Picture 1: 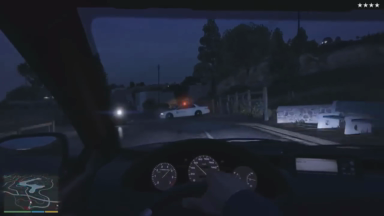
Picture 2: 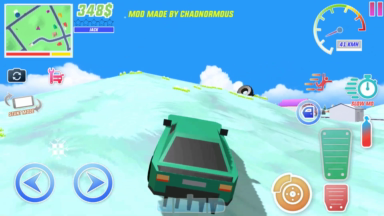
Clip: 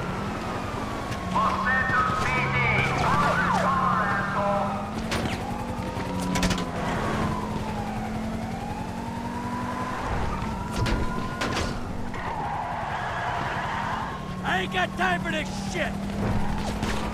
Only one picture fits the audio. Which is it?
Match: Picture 1